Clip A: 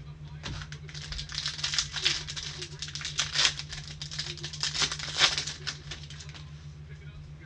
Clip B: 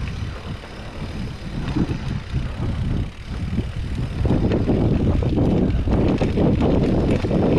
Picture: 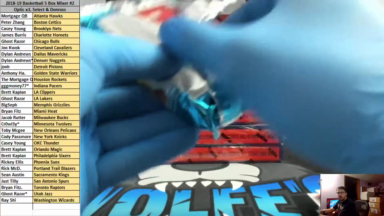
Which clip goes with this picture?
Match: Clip A